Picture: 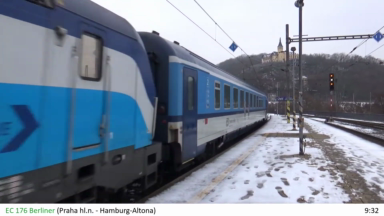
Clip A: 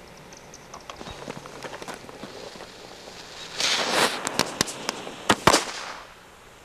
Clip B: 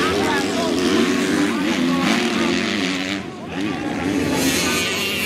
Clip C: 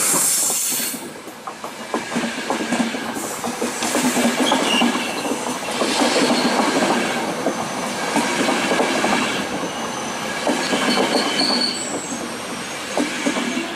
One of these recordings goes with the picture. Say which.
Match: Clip C